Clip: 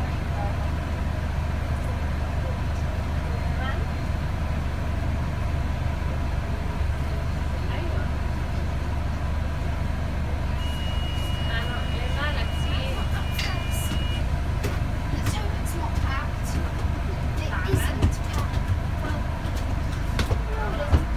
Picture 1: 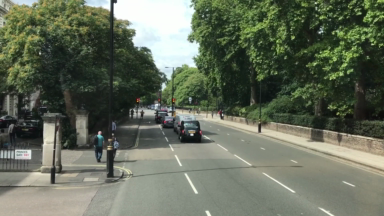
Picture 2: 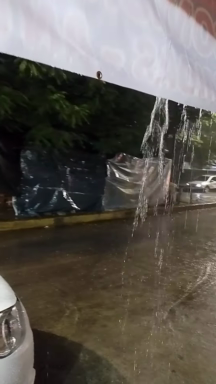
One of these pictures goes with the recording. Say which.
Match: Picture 1